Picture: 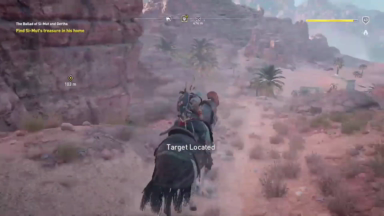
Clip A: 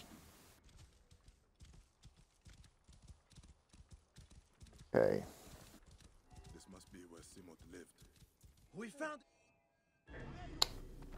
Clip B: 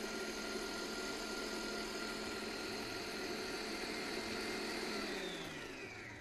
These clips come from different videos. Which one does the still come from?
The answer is A